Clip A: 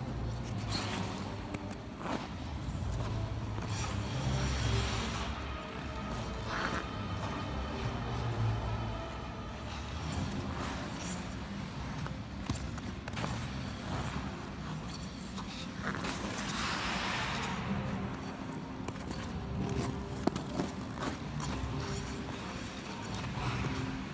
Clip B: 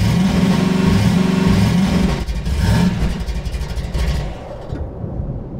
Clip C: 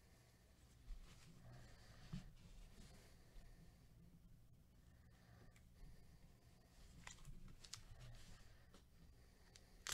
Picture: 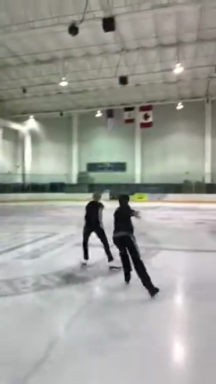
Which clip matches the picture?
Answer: A